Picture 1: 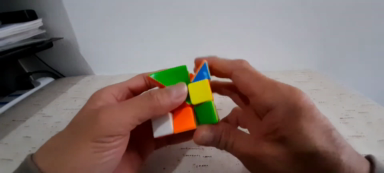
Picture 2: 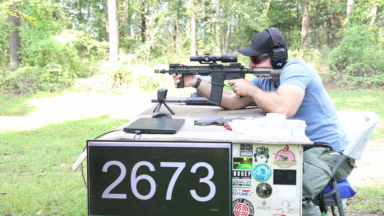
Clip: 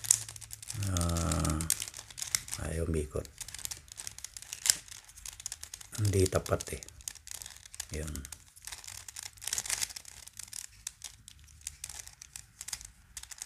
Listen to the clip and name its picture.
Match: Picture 1